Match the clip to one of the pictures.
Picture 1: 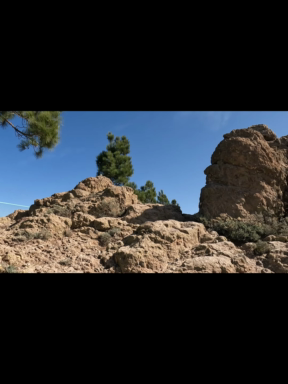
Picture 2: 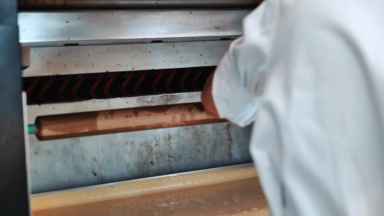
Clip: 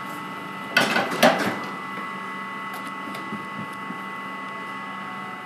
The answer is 2